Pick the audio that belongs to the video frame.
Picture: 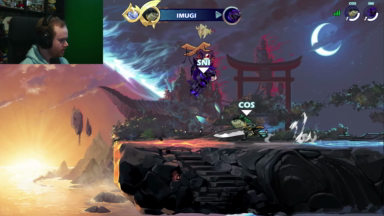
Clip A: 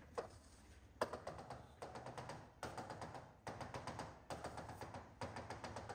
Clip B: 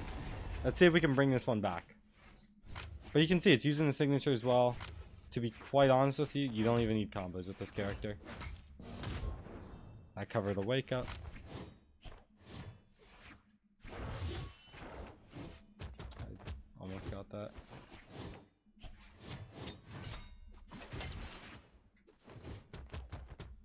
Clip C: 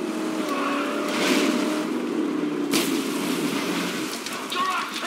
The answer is B